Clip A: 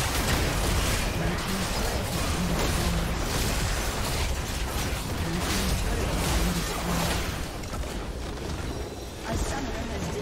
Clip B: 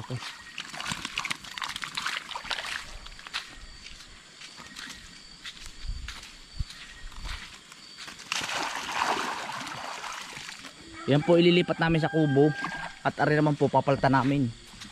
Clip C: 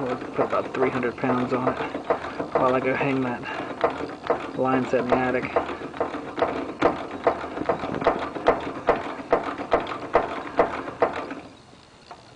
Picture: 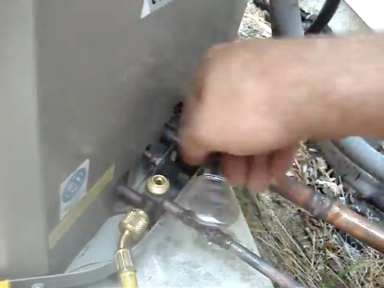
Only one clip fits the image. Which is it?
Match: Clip C